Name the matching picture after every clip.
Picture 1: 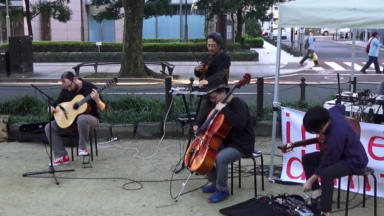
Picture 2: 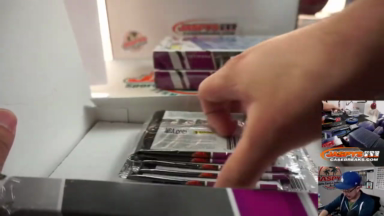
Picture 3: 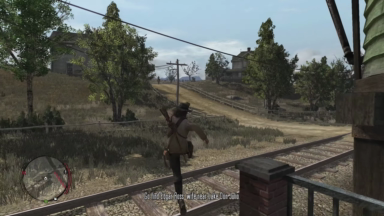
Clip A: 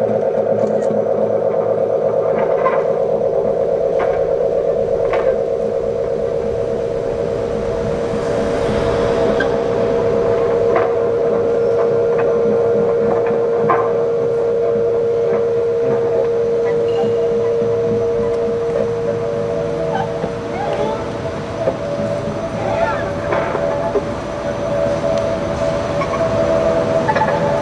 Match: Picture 1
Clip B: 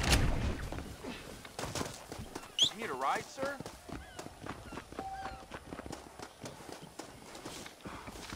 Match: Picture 3